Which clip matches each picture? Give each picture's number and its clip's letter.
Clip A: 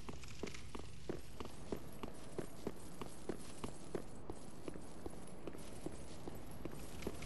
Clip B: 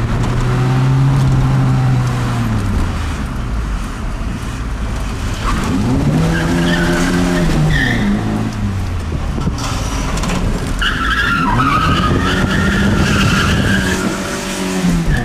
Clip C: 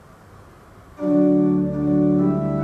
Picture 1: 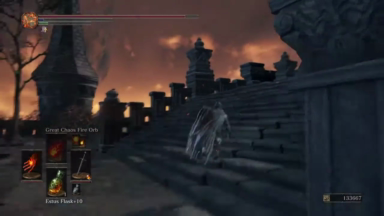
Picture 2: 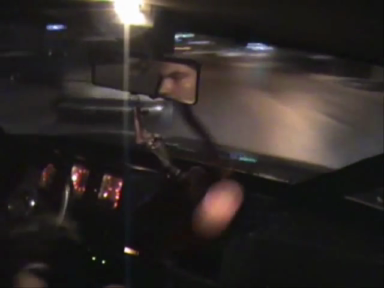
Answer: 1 A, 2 B